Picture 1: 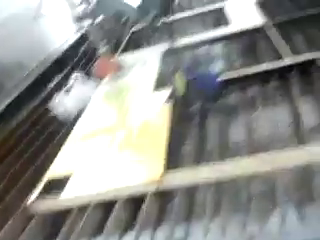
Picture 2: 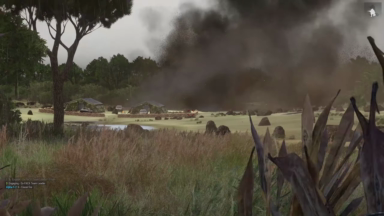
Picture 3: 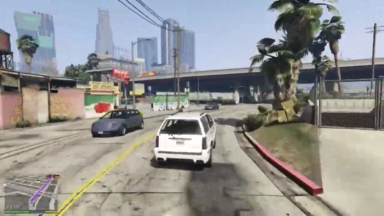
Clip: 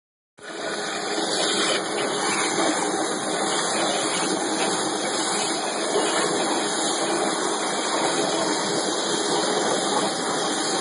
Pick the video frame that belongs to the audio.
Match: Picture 1